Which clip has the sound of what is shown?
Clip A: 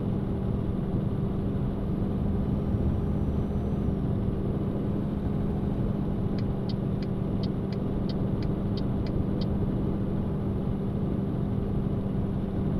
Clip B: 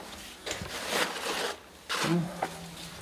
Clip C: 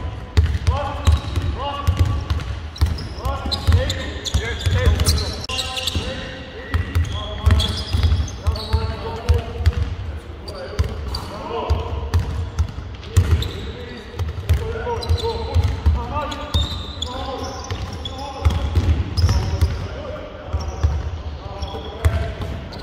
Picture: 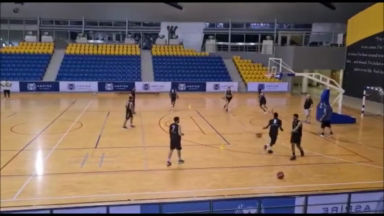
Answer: C